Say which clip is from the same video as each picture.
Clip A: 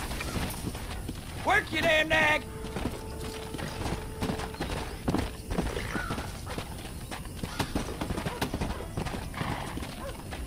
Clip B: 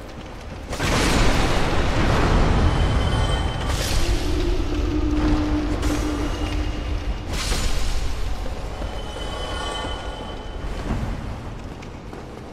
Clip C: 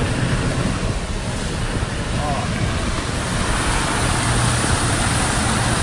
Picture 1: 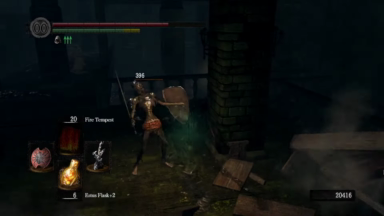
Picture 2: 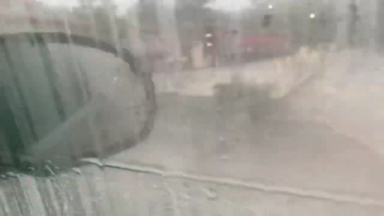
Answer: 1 B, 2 C